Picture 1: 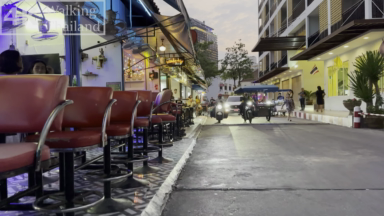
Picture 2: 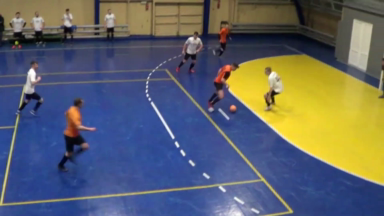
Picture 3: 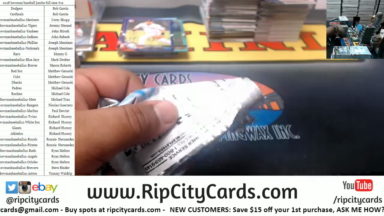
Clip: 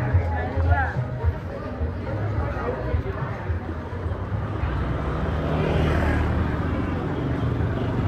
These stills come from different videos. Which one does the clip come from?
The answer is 1